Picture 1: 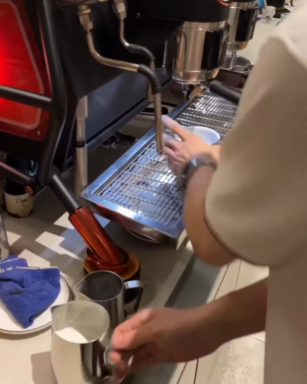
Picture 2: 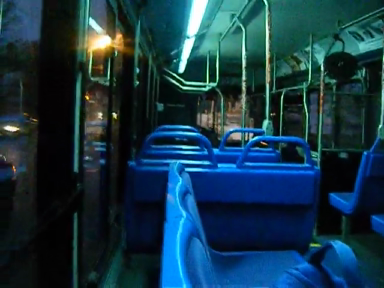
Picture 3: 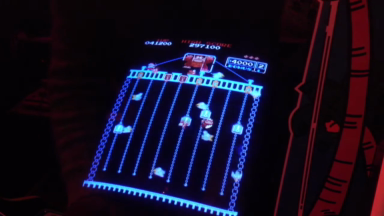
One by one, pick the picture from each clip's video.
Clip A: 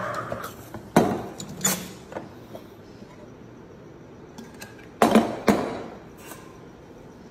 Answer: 1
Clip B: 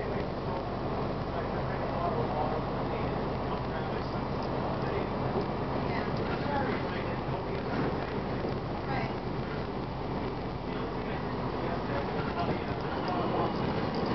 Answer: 2